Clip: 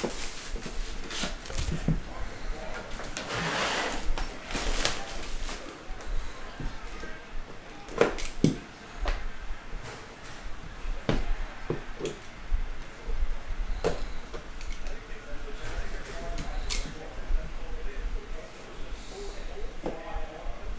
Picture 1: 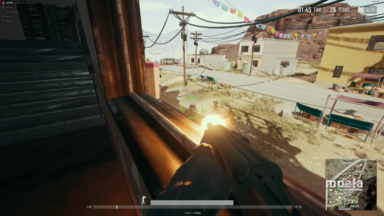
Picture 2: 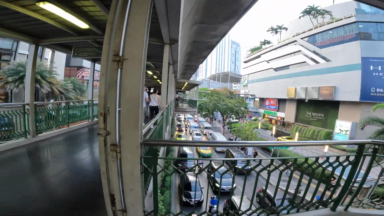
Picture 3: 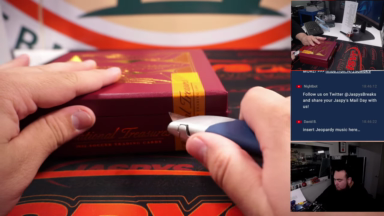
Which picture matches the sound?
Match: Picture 3